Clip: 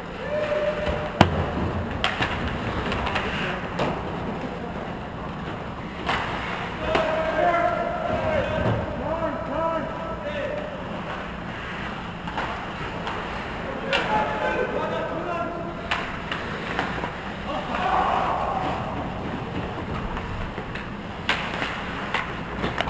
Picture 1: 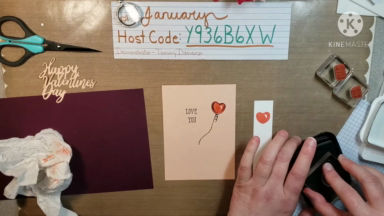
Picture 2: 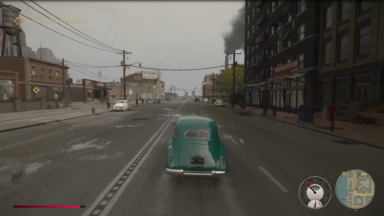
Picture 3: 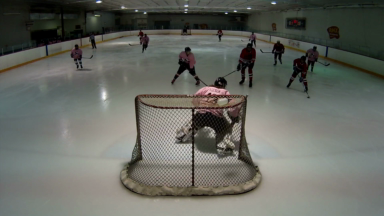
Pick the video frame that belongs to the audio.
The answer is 3